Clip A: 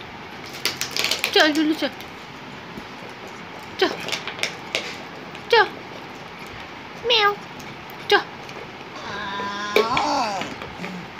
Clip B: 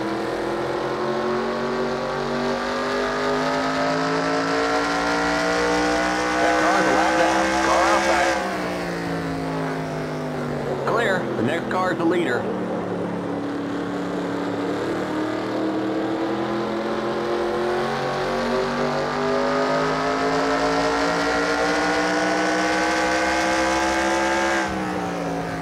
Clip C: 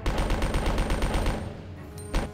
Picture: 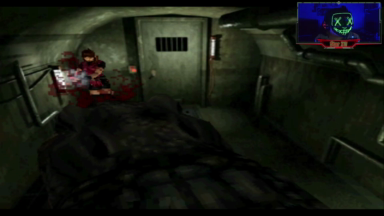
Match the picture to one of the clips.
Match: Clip C